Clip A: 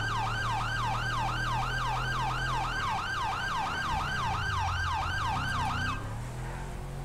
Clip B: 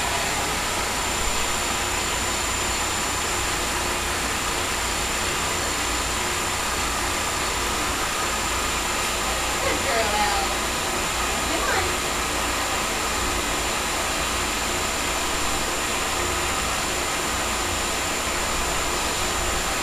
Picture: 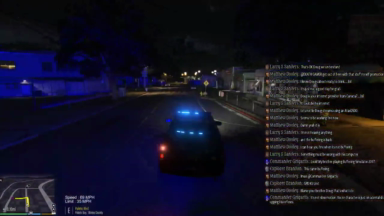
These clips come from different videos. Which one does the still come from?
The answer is A